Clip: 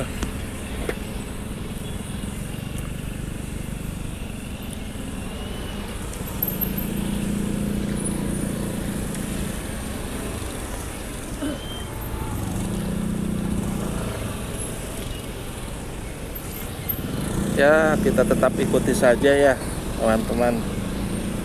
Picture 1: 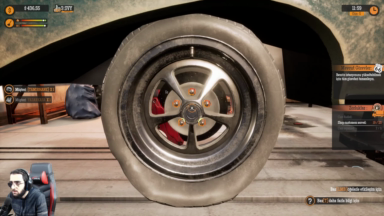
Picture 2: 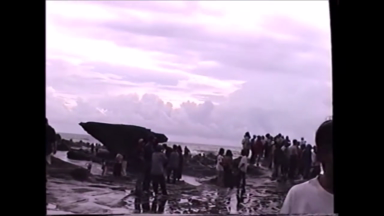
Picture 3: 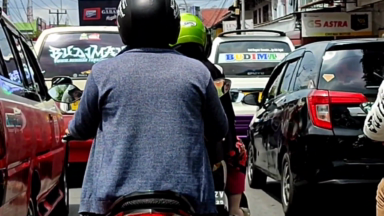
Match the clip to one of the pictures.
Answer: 3